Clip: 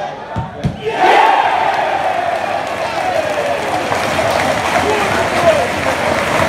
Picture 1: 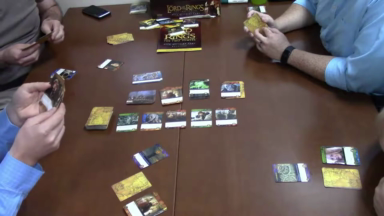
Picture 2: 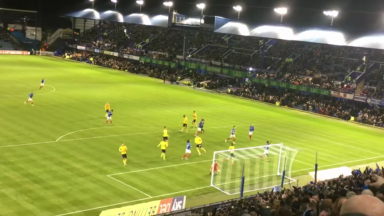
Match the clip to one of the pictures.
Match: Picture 2